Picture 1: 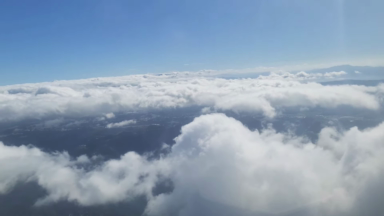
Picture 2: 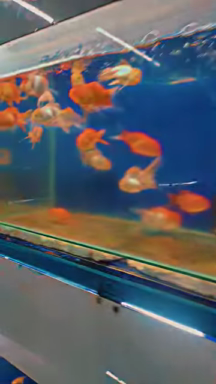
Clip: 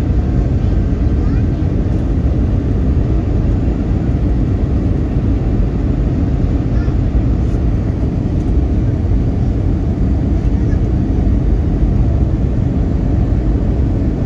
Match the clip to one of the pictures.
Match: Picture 1